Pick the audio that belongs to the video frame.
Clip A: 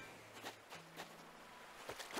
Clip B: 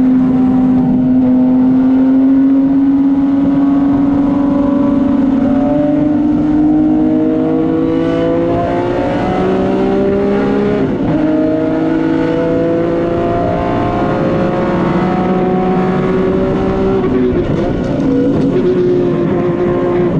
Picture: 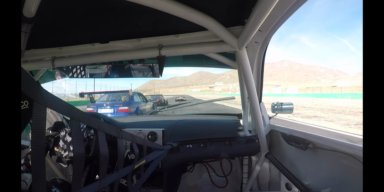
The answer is B